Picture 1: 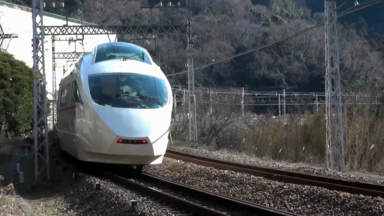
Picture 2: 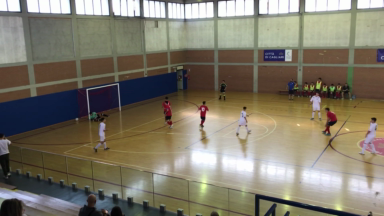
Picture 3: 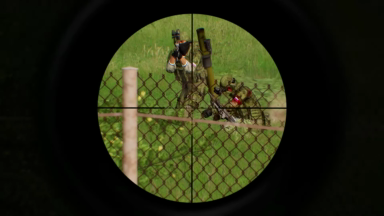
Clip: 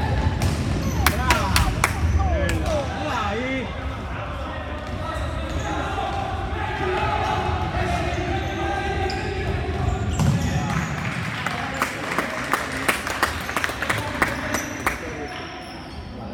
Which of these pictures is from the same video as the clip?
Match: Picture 2